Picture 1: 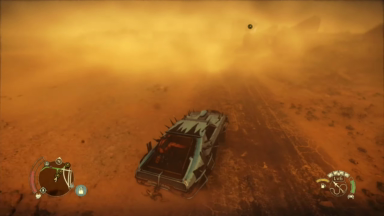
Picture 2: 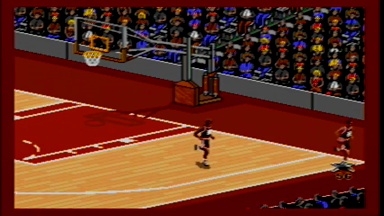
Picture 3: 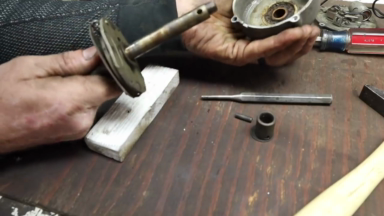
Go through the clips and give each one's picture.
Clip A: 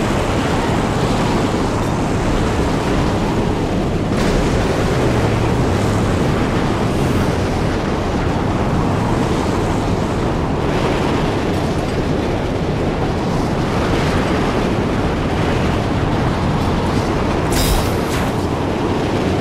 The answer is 1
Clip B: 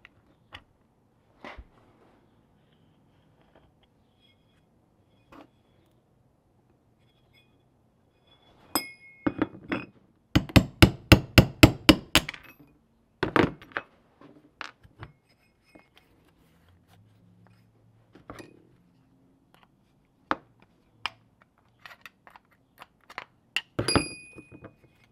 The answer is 3